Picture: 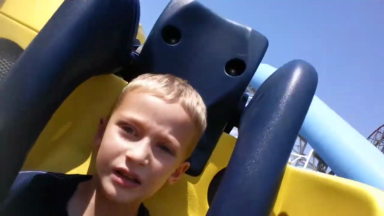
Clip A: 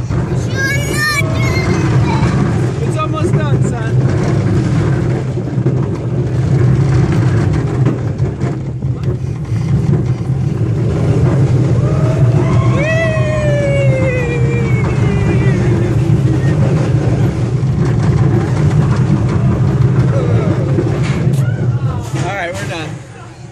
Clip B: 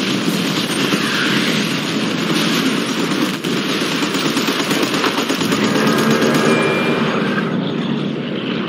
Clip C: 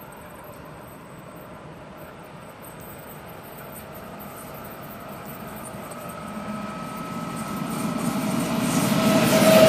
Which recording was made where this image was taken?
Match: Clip A